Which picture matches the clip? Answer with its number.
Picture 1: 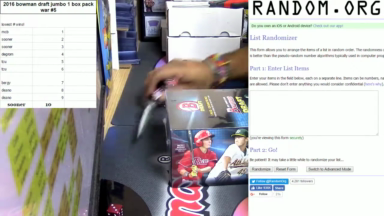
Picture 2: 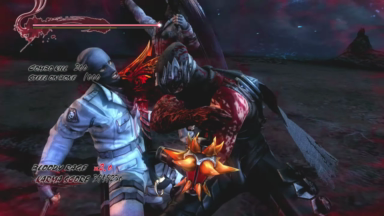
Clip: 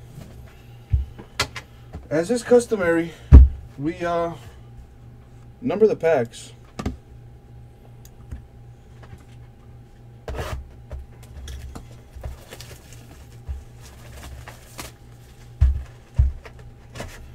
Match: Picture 1